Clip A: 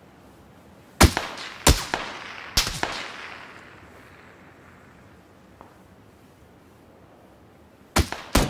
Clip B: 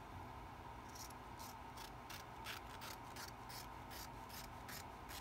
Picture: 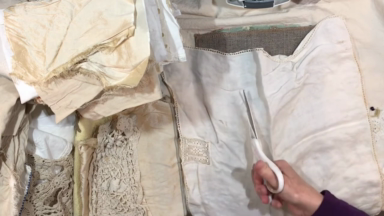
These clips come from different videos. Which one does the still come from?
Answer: B